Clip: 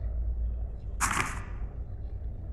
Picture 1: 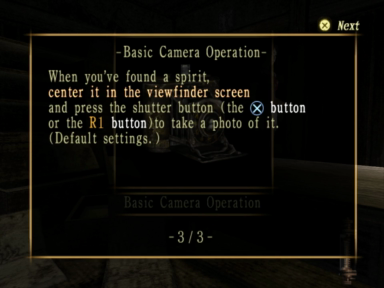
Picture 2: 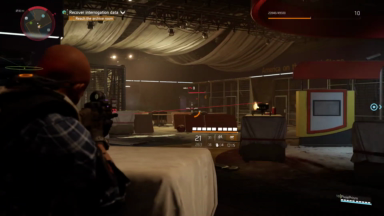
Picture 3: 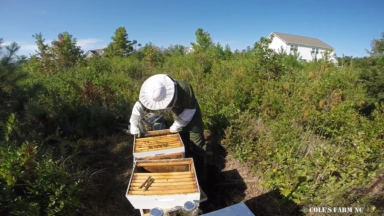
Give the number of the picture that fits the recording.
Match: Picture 1